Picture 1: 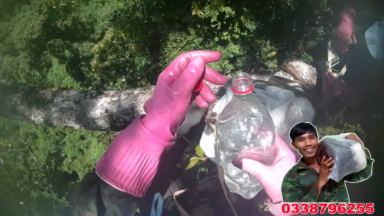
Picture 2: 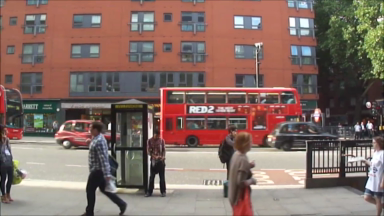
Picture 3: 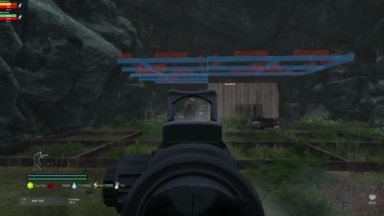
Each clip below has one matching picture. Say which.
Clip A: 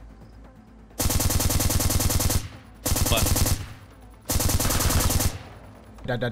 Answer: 3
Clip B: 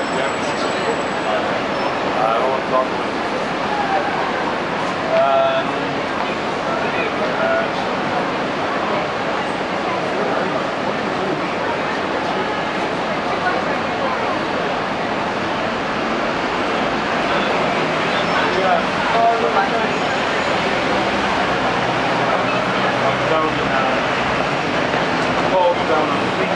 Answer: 2